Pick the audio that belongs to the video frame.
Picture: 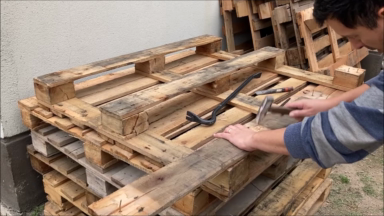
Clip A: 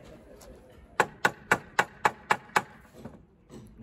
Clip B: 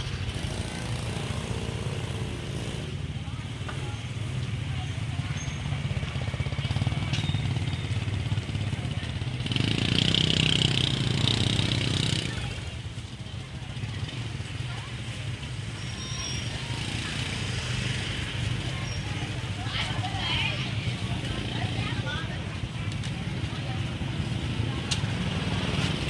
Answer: A